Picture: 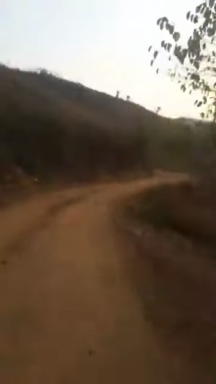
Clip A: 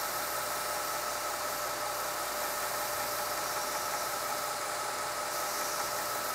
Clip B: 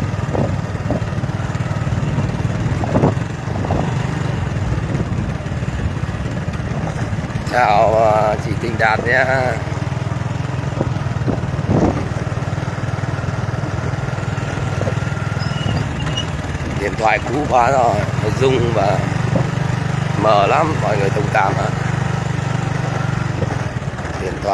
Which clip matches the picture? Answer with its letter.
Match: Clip B